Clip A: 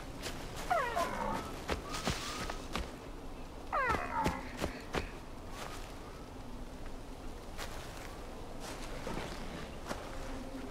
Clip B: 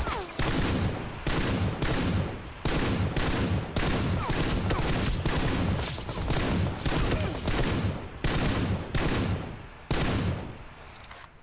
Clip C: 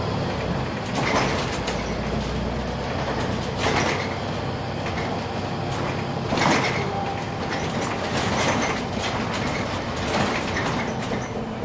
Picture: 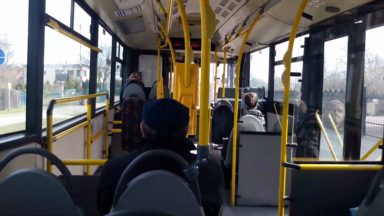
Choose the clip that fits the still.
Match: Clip C